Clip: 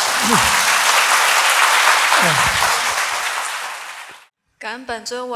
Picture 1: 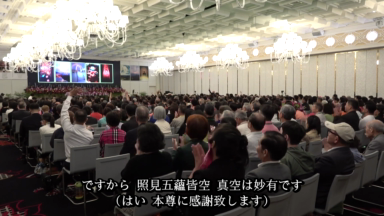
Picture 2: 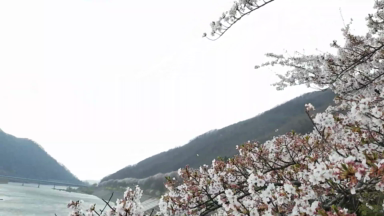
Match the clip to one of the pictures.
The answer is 1